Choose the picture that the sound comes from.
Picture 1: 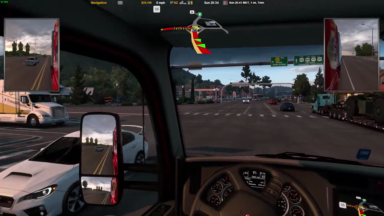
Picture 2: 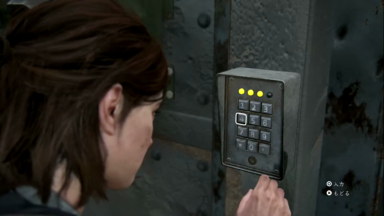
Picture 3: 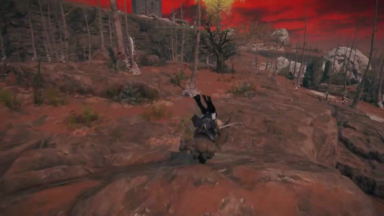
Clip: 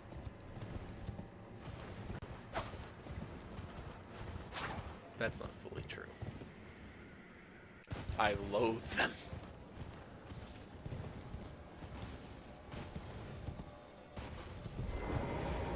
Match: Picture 3